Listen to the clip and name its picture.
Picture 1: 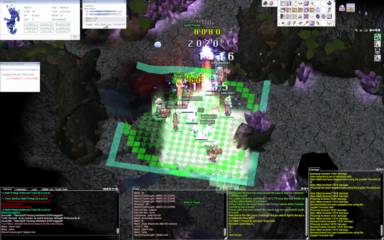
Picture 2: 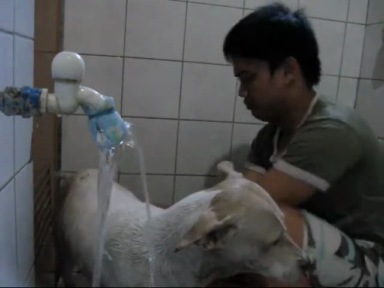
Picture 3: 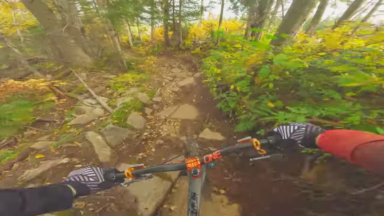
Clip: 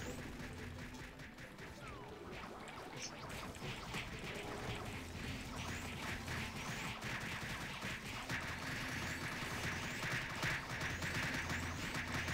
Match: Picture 1